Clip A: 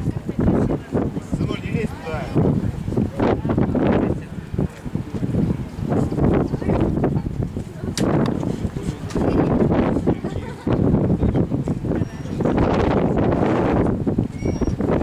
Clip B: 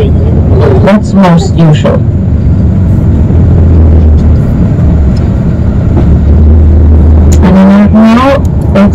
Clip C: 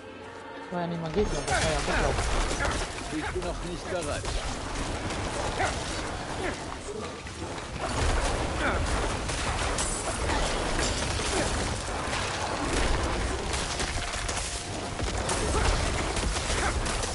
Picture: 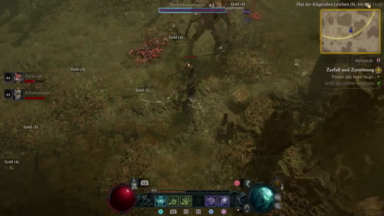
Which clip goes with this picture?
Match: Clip C